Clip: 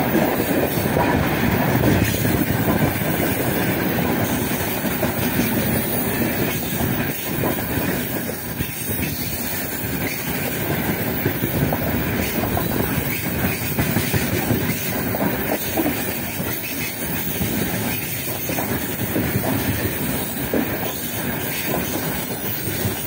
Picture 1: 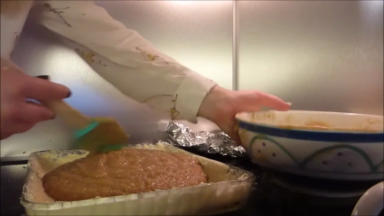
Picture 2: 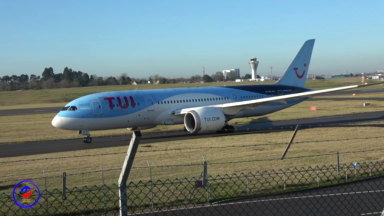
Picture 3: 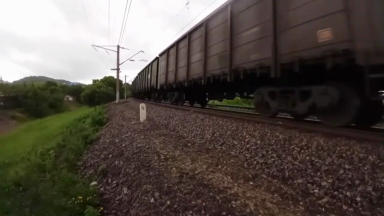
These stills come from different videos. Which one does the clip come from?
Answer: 3